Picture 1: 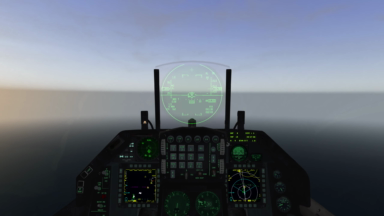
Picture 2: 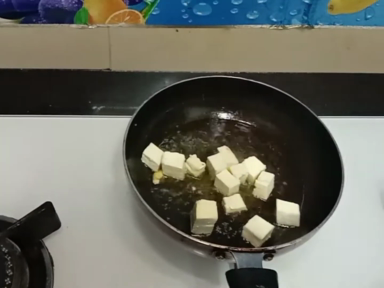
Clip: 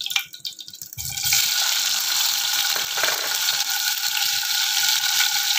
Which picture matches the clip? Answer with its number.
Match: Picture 2